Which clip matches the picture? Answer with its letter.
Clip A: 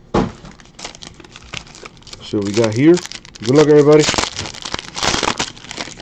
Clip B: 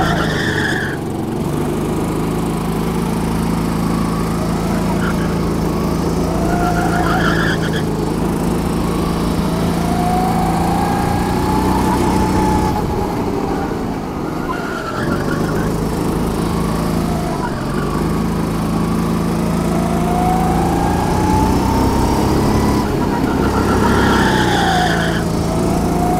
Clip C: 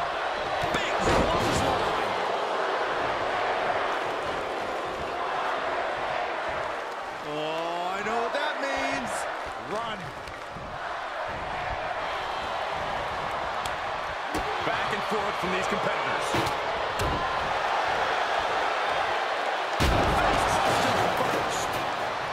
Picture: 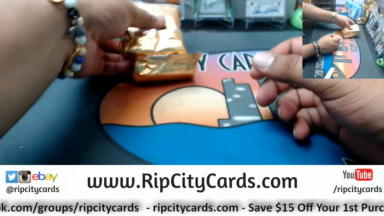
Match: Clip A